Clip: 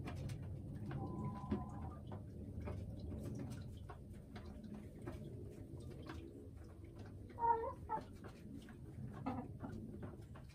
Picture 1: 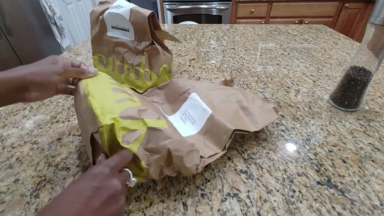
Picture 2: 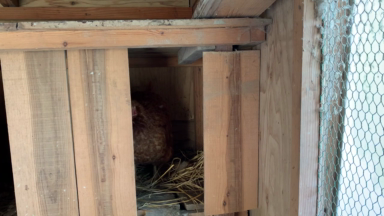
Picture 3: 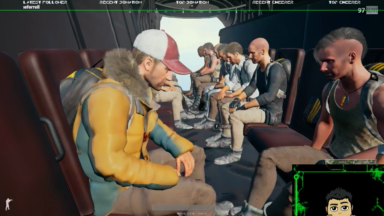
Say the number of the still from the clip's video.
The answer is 2